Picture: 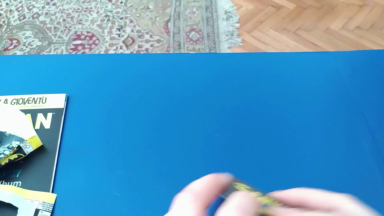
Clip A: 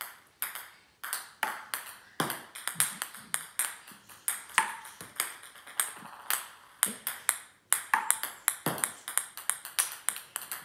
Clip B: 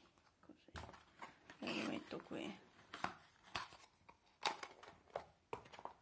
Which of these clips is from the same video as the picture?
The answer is B